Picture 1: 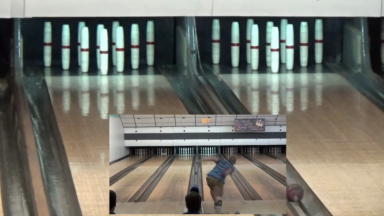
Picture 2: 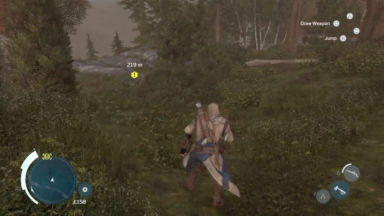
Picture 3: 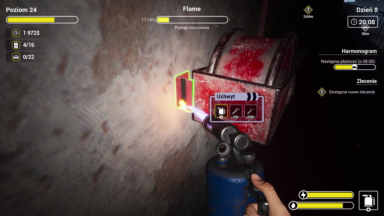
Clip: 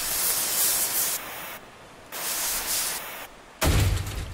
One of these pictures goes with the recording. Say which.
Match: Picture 3